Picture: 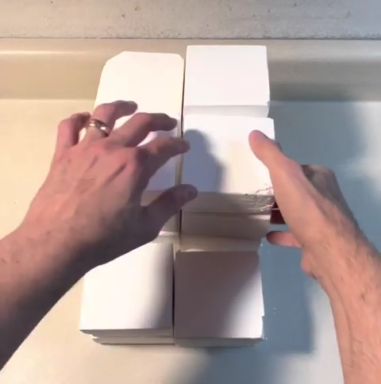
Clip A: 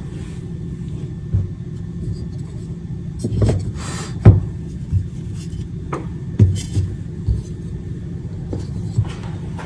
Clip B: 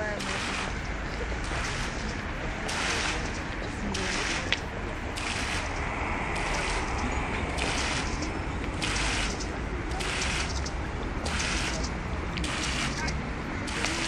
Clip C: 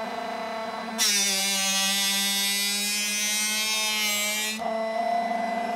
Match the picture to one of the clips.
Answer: A